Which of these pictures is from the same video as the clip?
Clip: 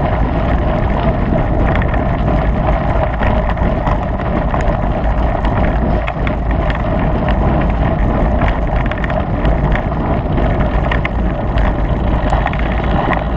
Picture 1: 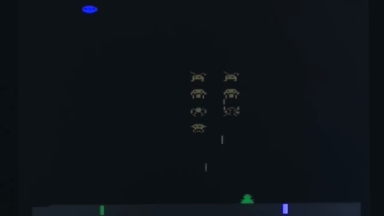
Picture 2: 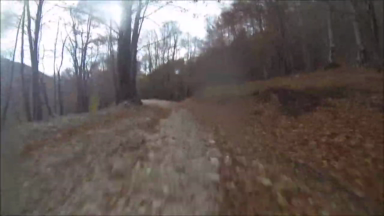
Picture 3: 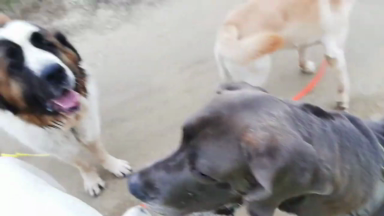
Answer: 2